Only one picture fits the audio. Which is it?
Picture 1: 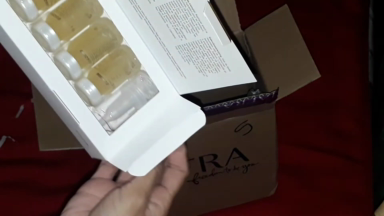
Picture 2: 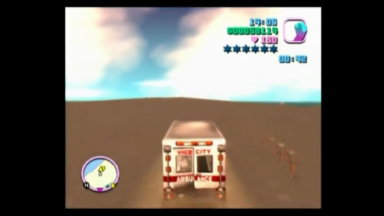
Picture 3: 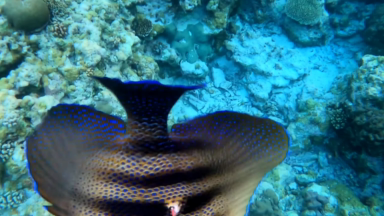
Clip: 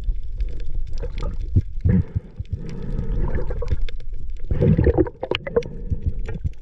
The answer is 3